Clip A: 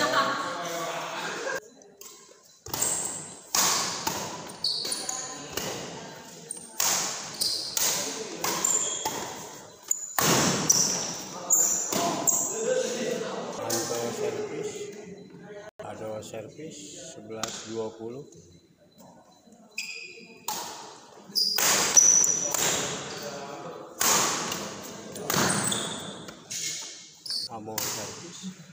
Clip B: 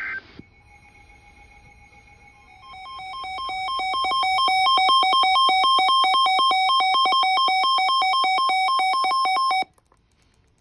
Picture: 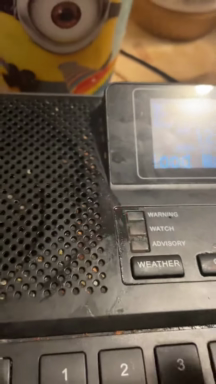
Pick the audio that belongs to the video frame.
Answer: B